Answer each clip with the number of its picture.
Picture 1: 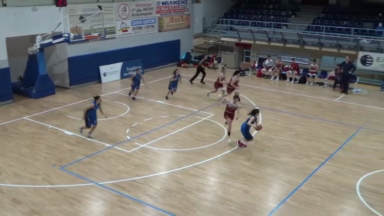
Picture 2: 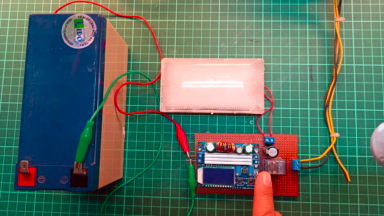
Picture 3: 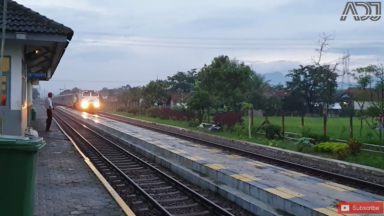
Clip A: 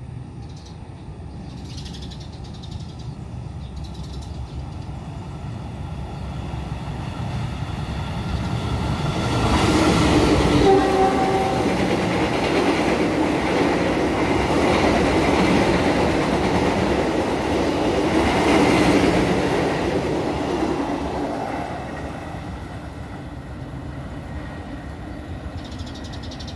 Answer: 3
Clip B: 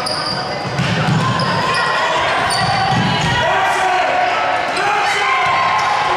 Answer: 1